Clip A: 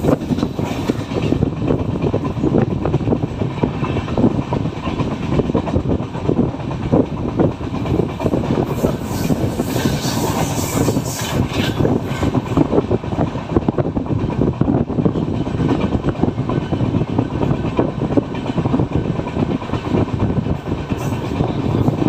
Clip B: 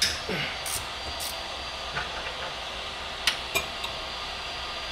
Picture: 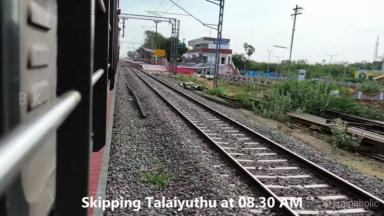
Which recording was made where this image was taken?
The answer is A